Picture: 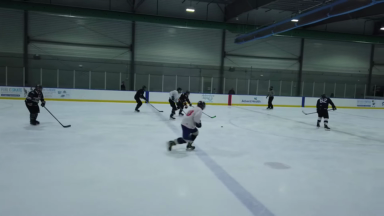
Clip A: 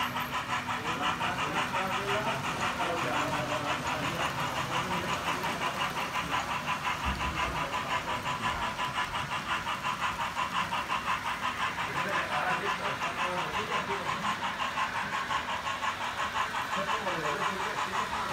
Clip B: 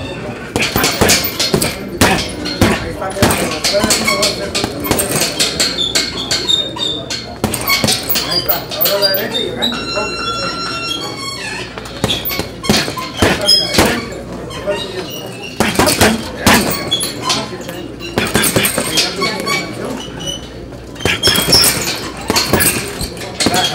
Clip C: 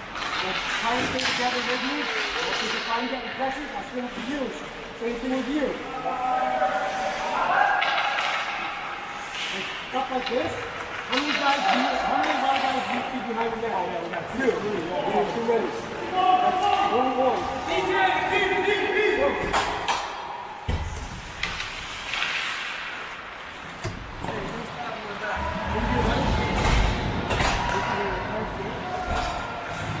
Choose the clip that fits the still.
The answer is C